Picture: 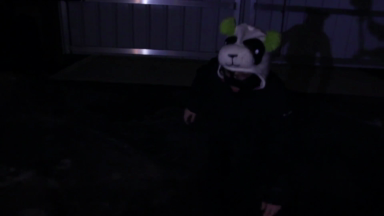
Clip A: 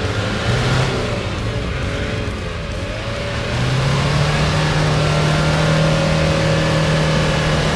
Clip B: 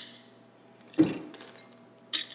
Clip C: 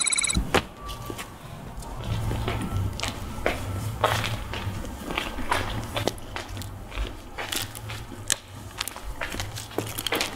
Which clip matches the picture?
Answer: C